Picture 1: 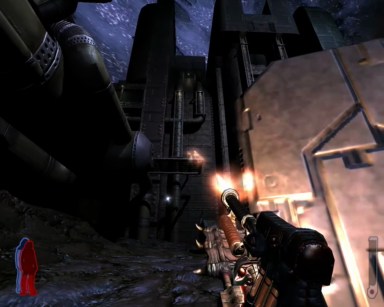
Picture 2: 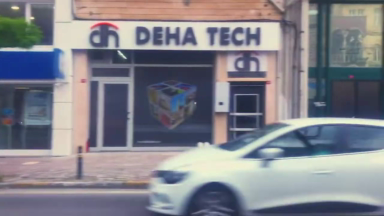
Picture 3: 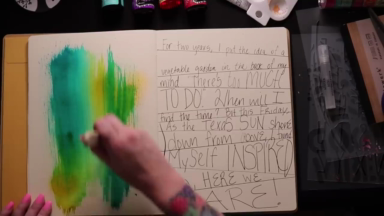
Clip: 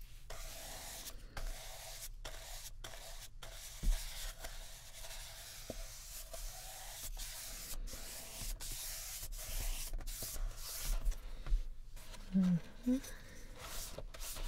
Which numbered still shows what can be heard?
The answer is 3